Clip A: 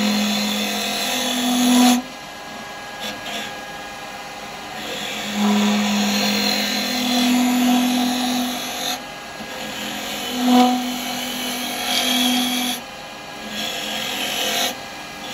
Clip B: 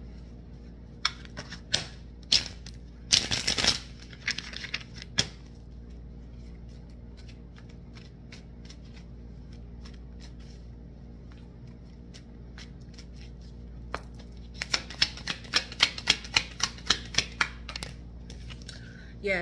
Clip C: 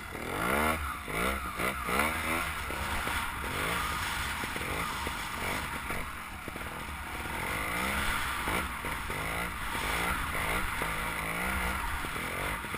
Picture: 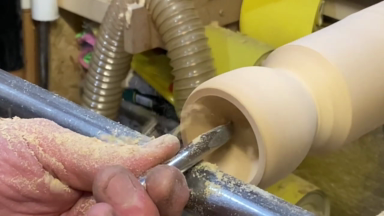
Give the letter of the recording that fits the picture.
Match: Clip A